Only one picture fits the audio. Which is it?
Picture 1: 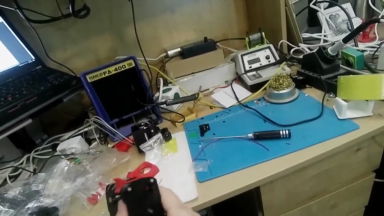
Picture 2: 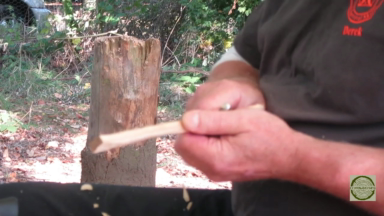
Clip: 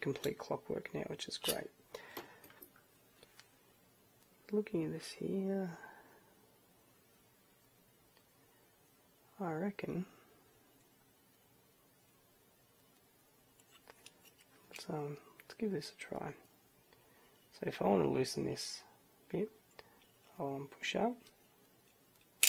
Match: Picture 1